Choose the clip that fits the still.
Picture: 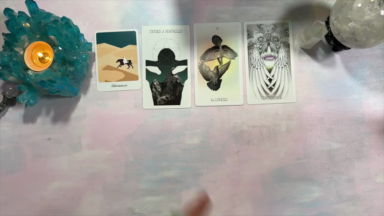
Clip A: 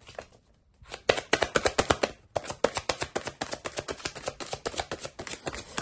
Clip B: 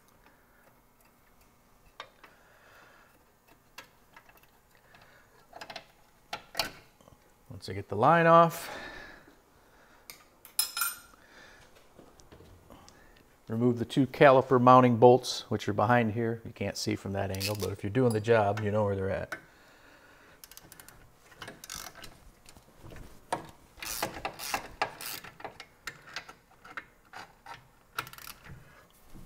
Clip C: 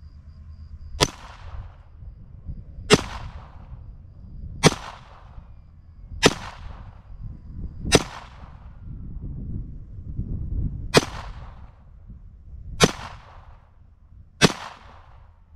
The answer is A